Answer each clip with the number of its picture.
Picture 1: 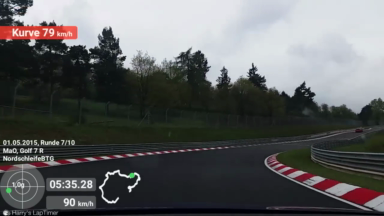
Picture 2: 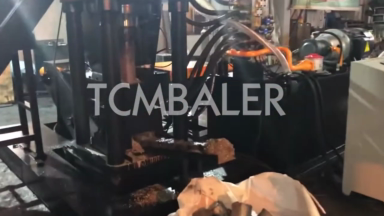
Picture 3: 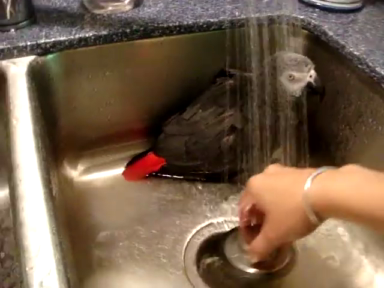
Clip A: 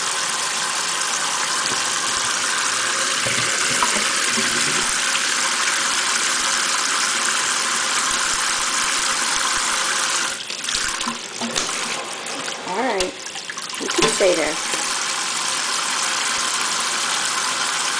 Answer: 3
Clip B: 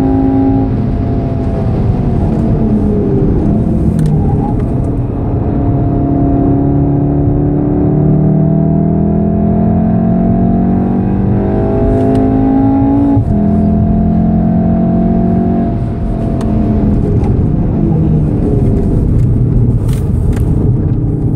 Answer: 1